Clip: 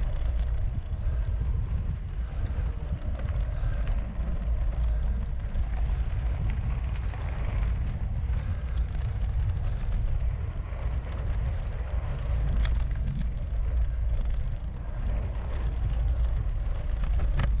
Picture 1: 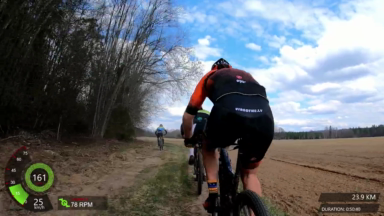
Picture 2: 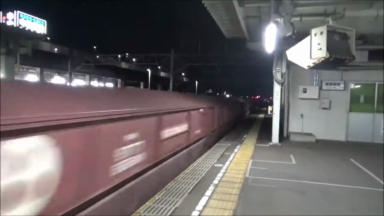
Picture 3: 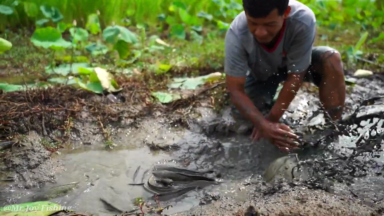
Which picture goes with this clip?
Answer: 1